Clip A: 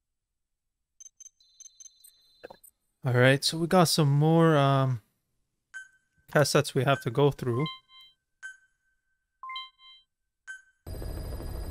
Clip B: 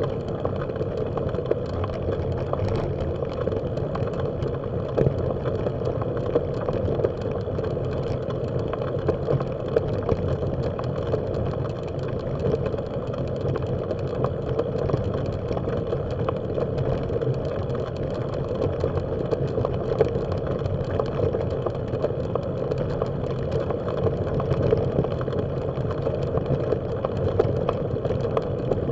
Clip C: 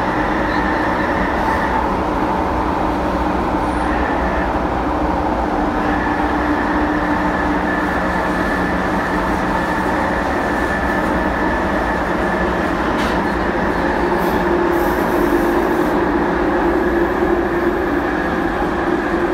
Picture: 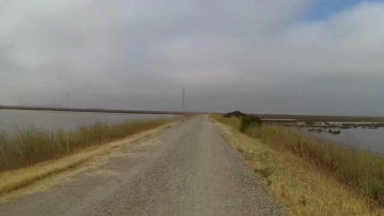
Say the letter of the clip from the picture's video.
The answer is B